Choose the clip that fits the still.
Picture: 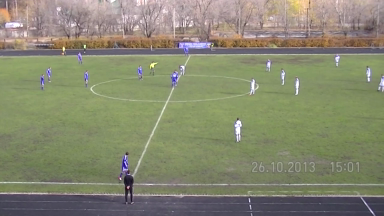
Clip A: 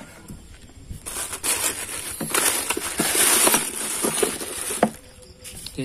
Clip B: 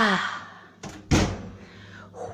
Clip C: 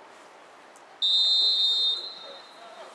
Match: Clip C